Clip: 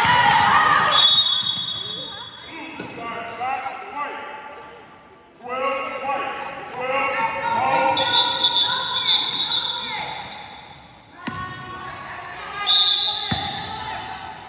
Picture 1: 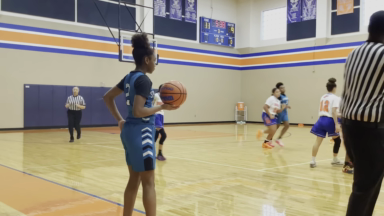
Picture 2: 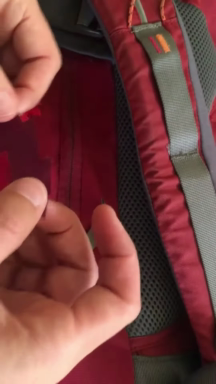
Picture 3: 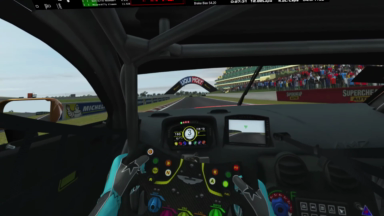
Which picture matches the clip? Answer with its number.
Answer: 1